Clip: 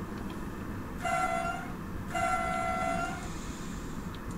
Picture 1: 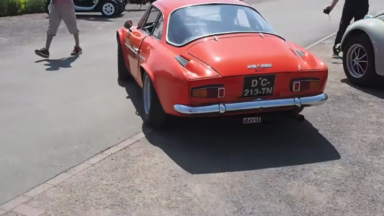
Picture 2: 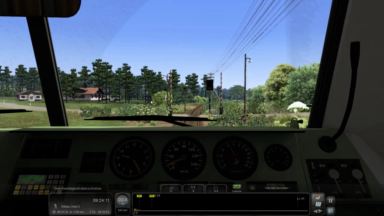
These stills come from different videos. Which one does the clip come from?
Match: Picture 2